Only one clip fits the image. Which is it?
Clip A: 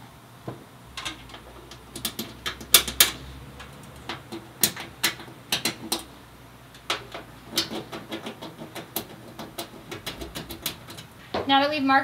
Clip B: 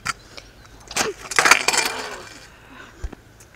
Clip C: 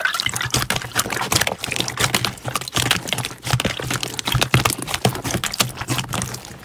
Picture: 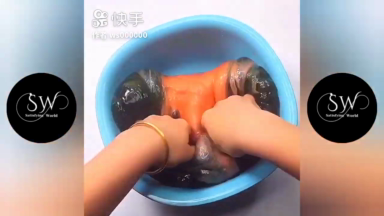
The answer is C